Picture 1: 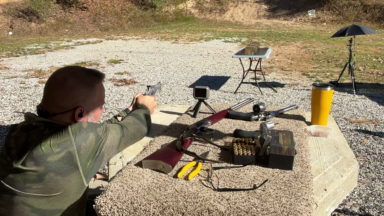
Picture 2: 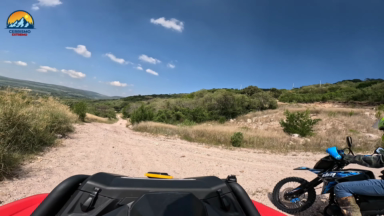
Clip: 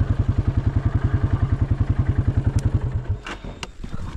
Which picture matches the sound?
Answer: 2